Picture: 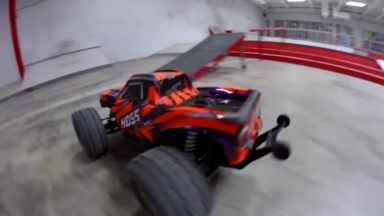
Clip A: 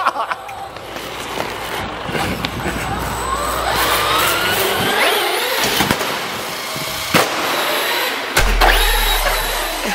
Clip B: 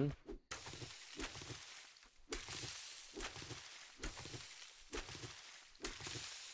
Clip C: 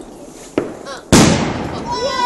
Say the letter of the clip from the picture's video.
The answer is A